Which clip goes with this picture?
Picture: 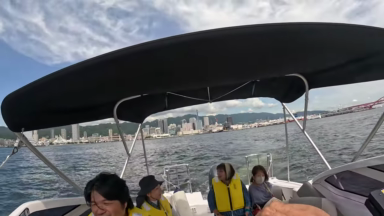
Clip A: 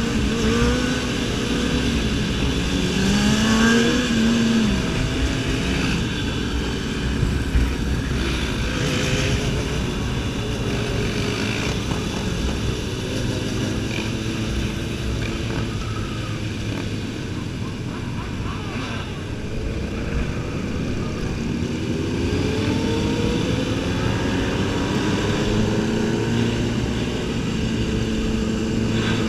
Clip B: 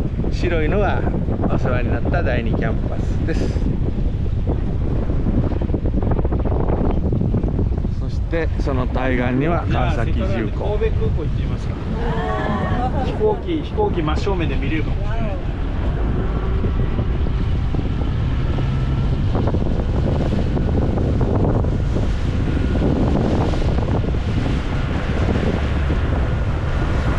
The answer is B